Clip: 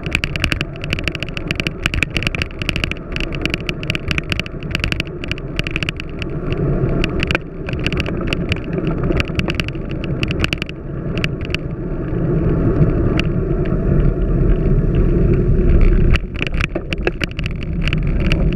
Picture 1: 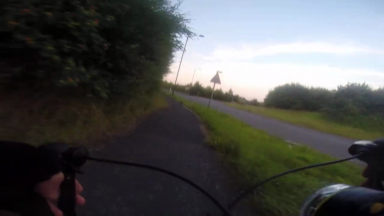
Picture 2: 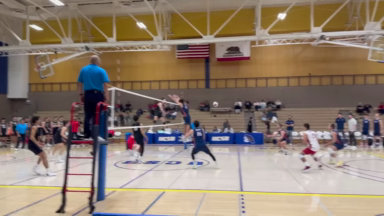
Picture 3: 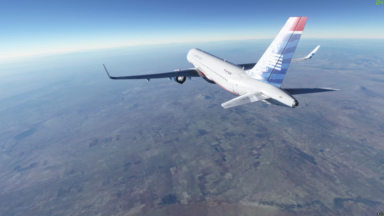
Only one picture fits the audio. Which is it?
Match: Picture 1